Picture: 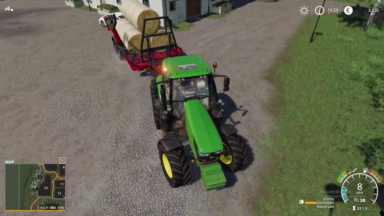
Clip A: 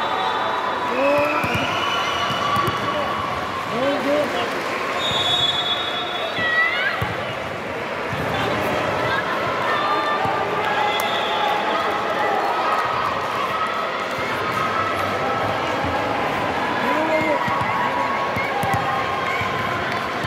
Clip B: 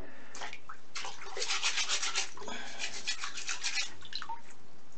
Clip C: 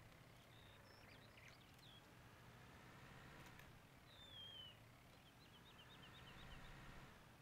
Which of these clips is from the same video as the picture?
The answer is C